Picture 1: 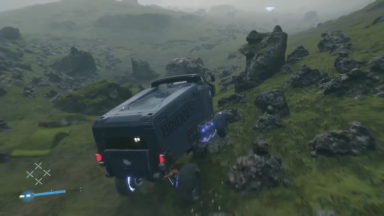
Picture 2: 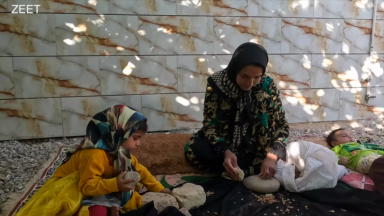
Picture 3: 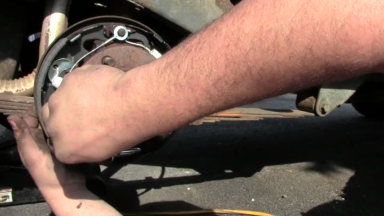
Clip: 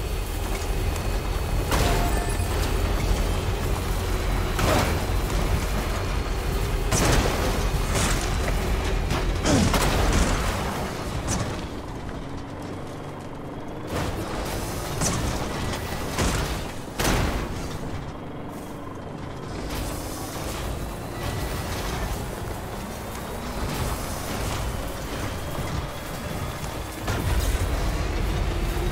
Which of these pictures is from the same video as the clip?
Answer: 1